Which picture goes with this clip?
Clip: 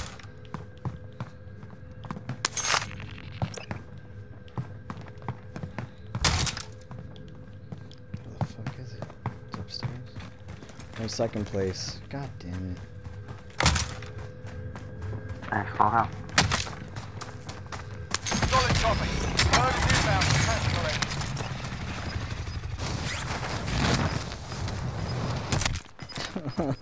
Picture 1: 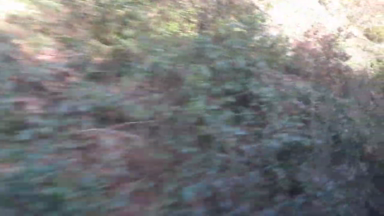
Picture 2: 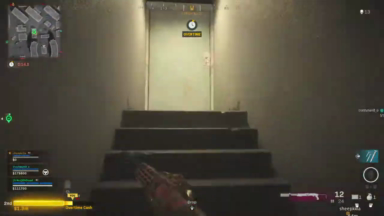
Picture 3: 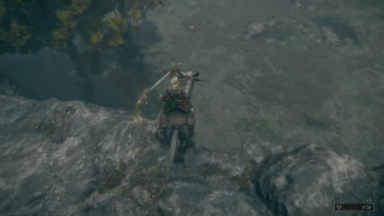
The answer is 2